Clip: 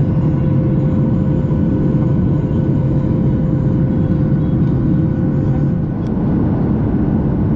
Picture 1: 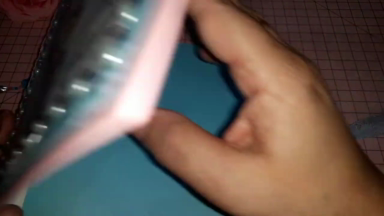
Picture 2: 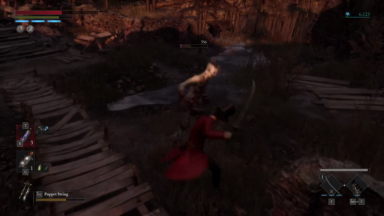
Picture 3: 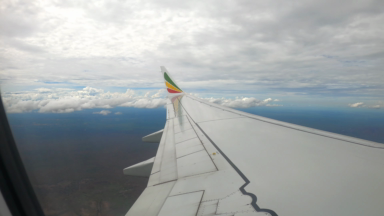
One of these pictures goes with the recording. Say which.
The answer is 3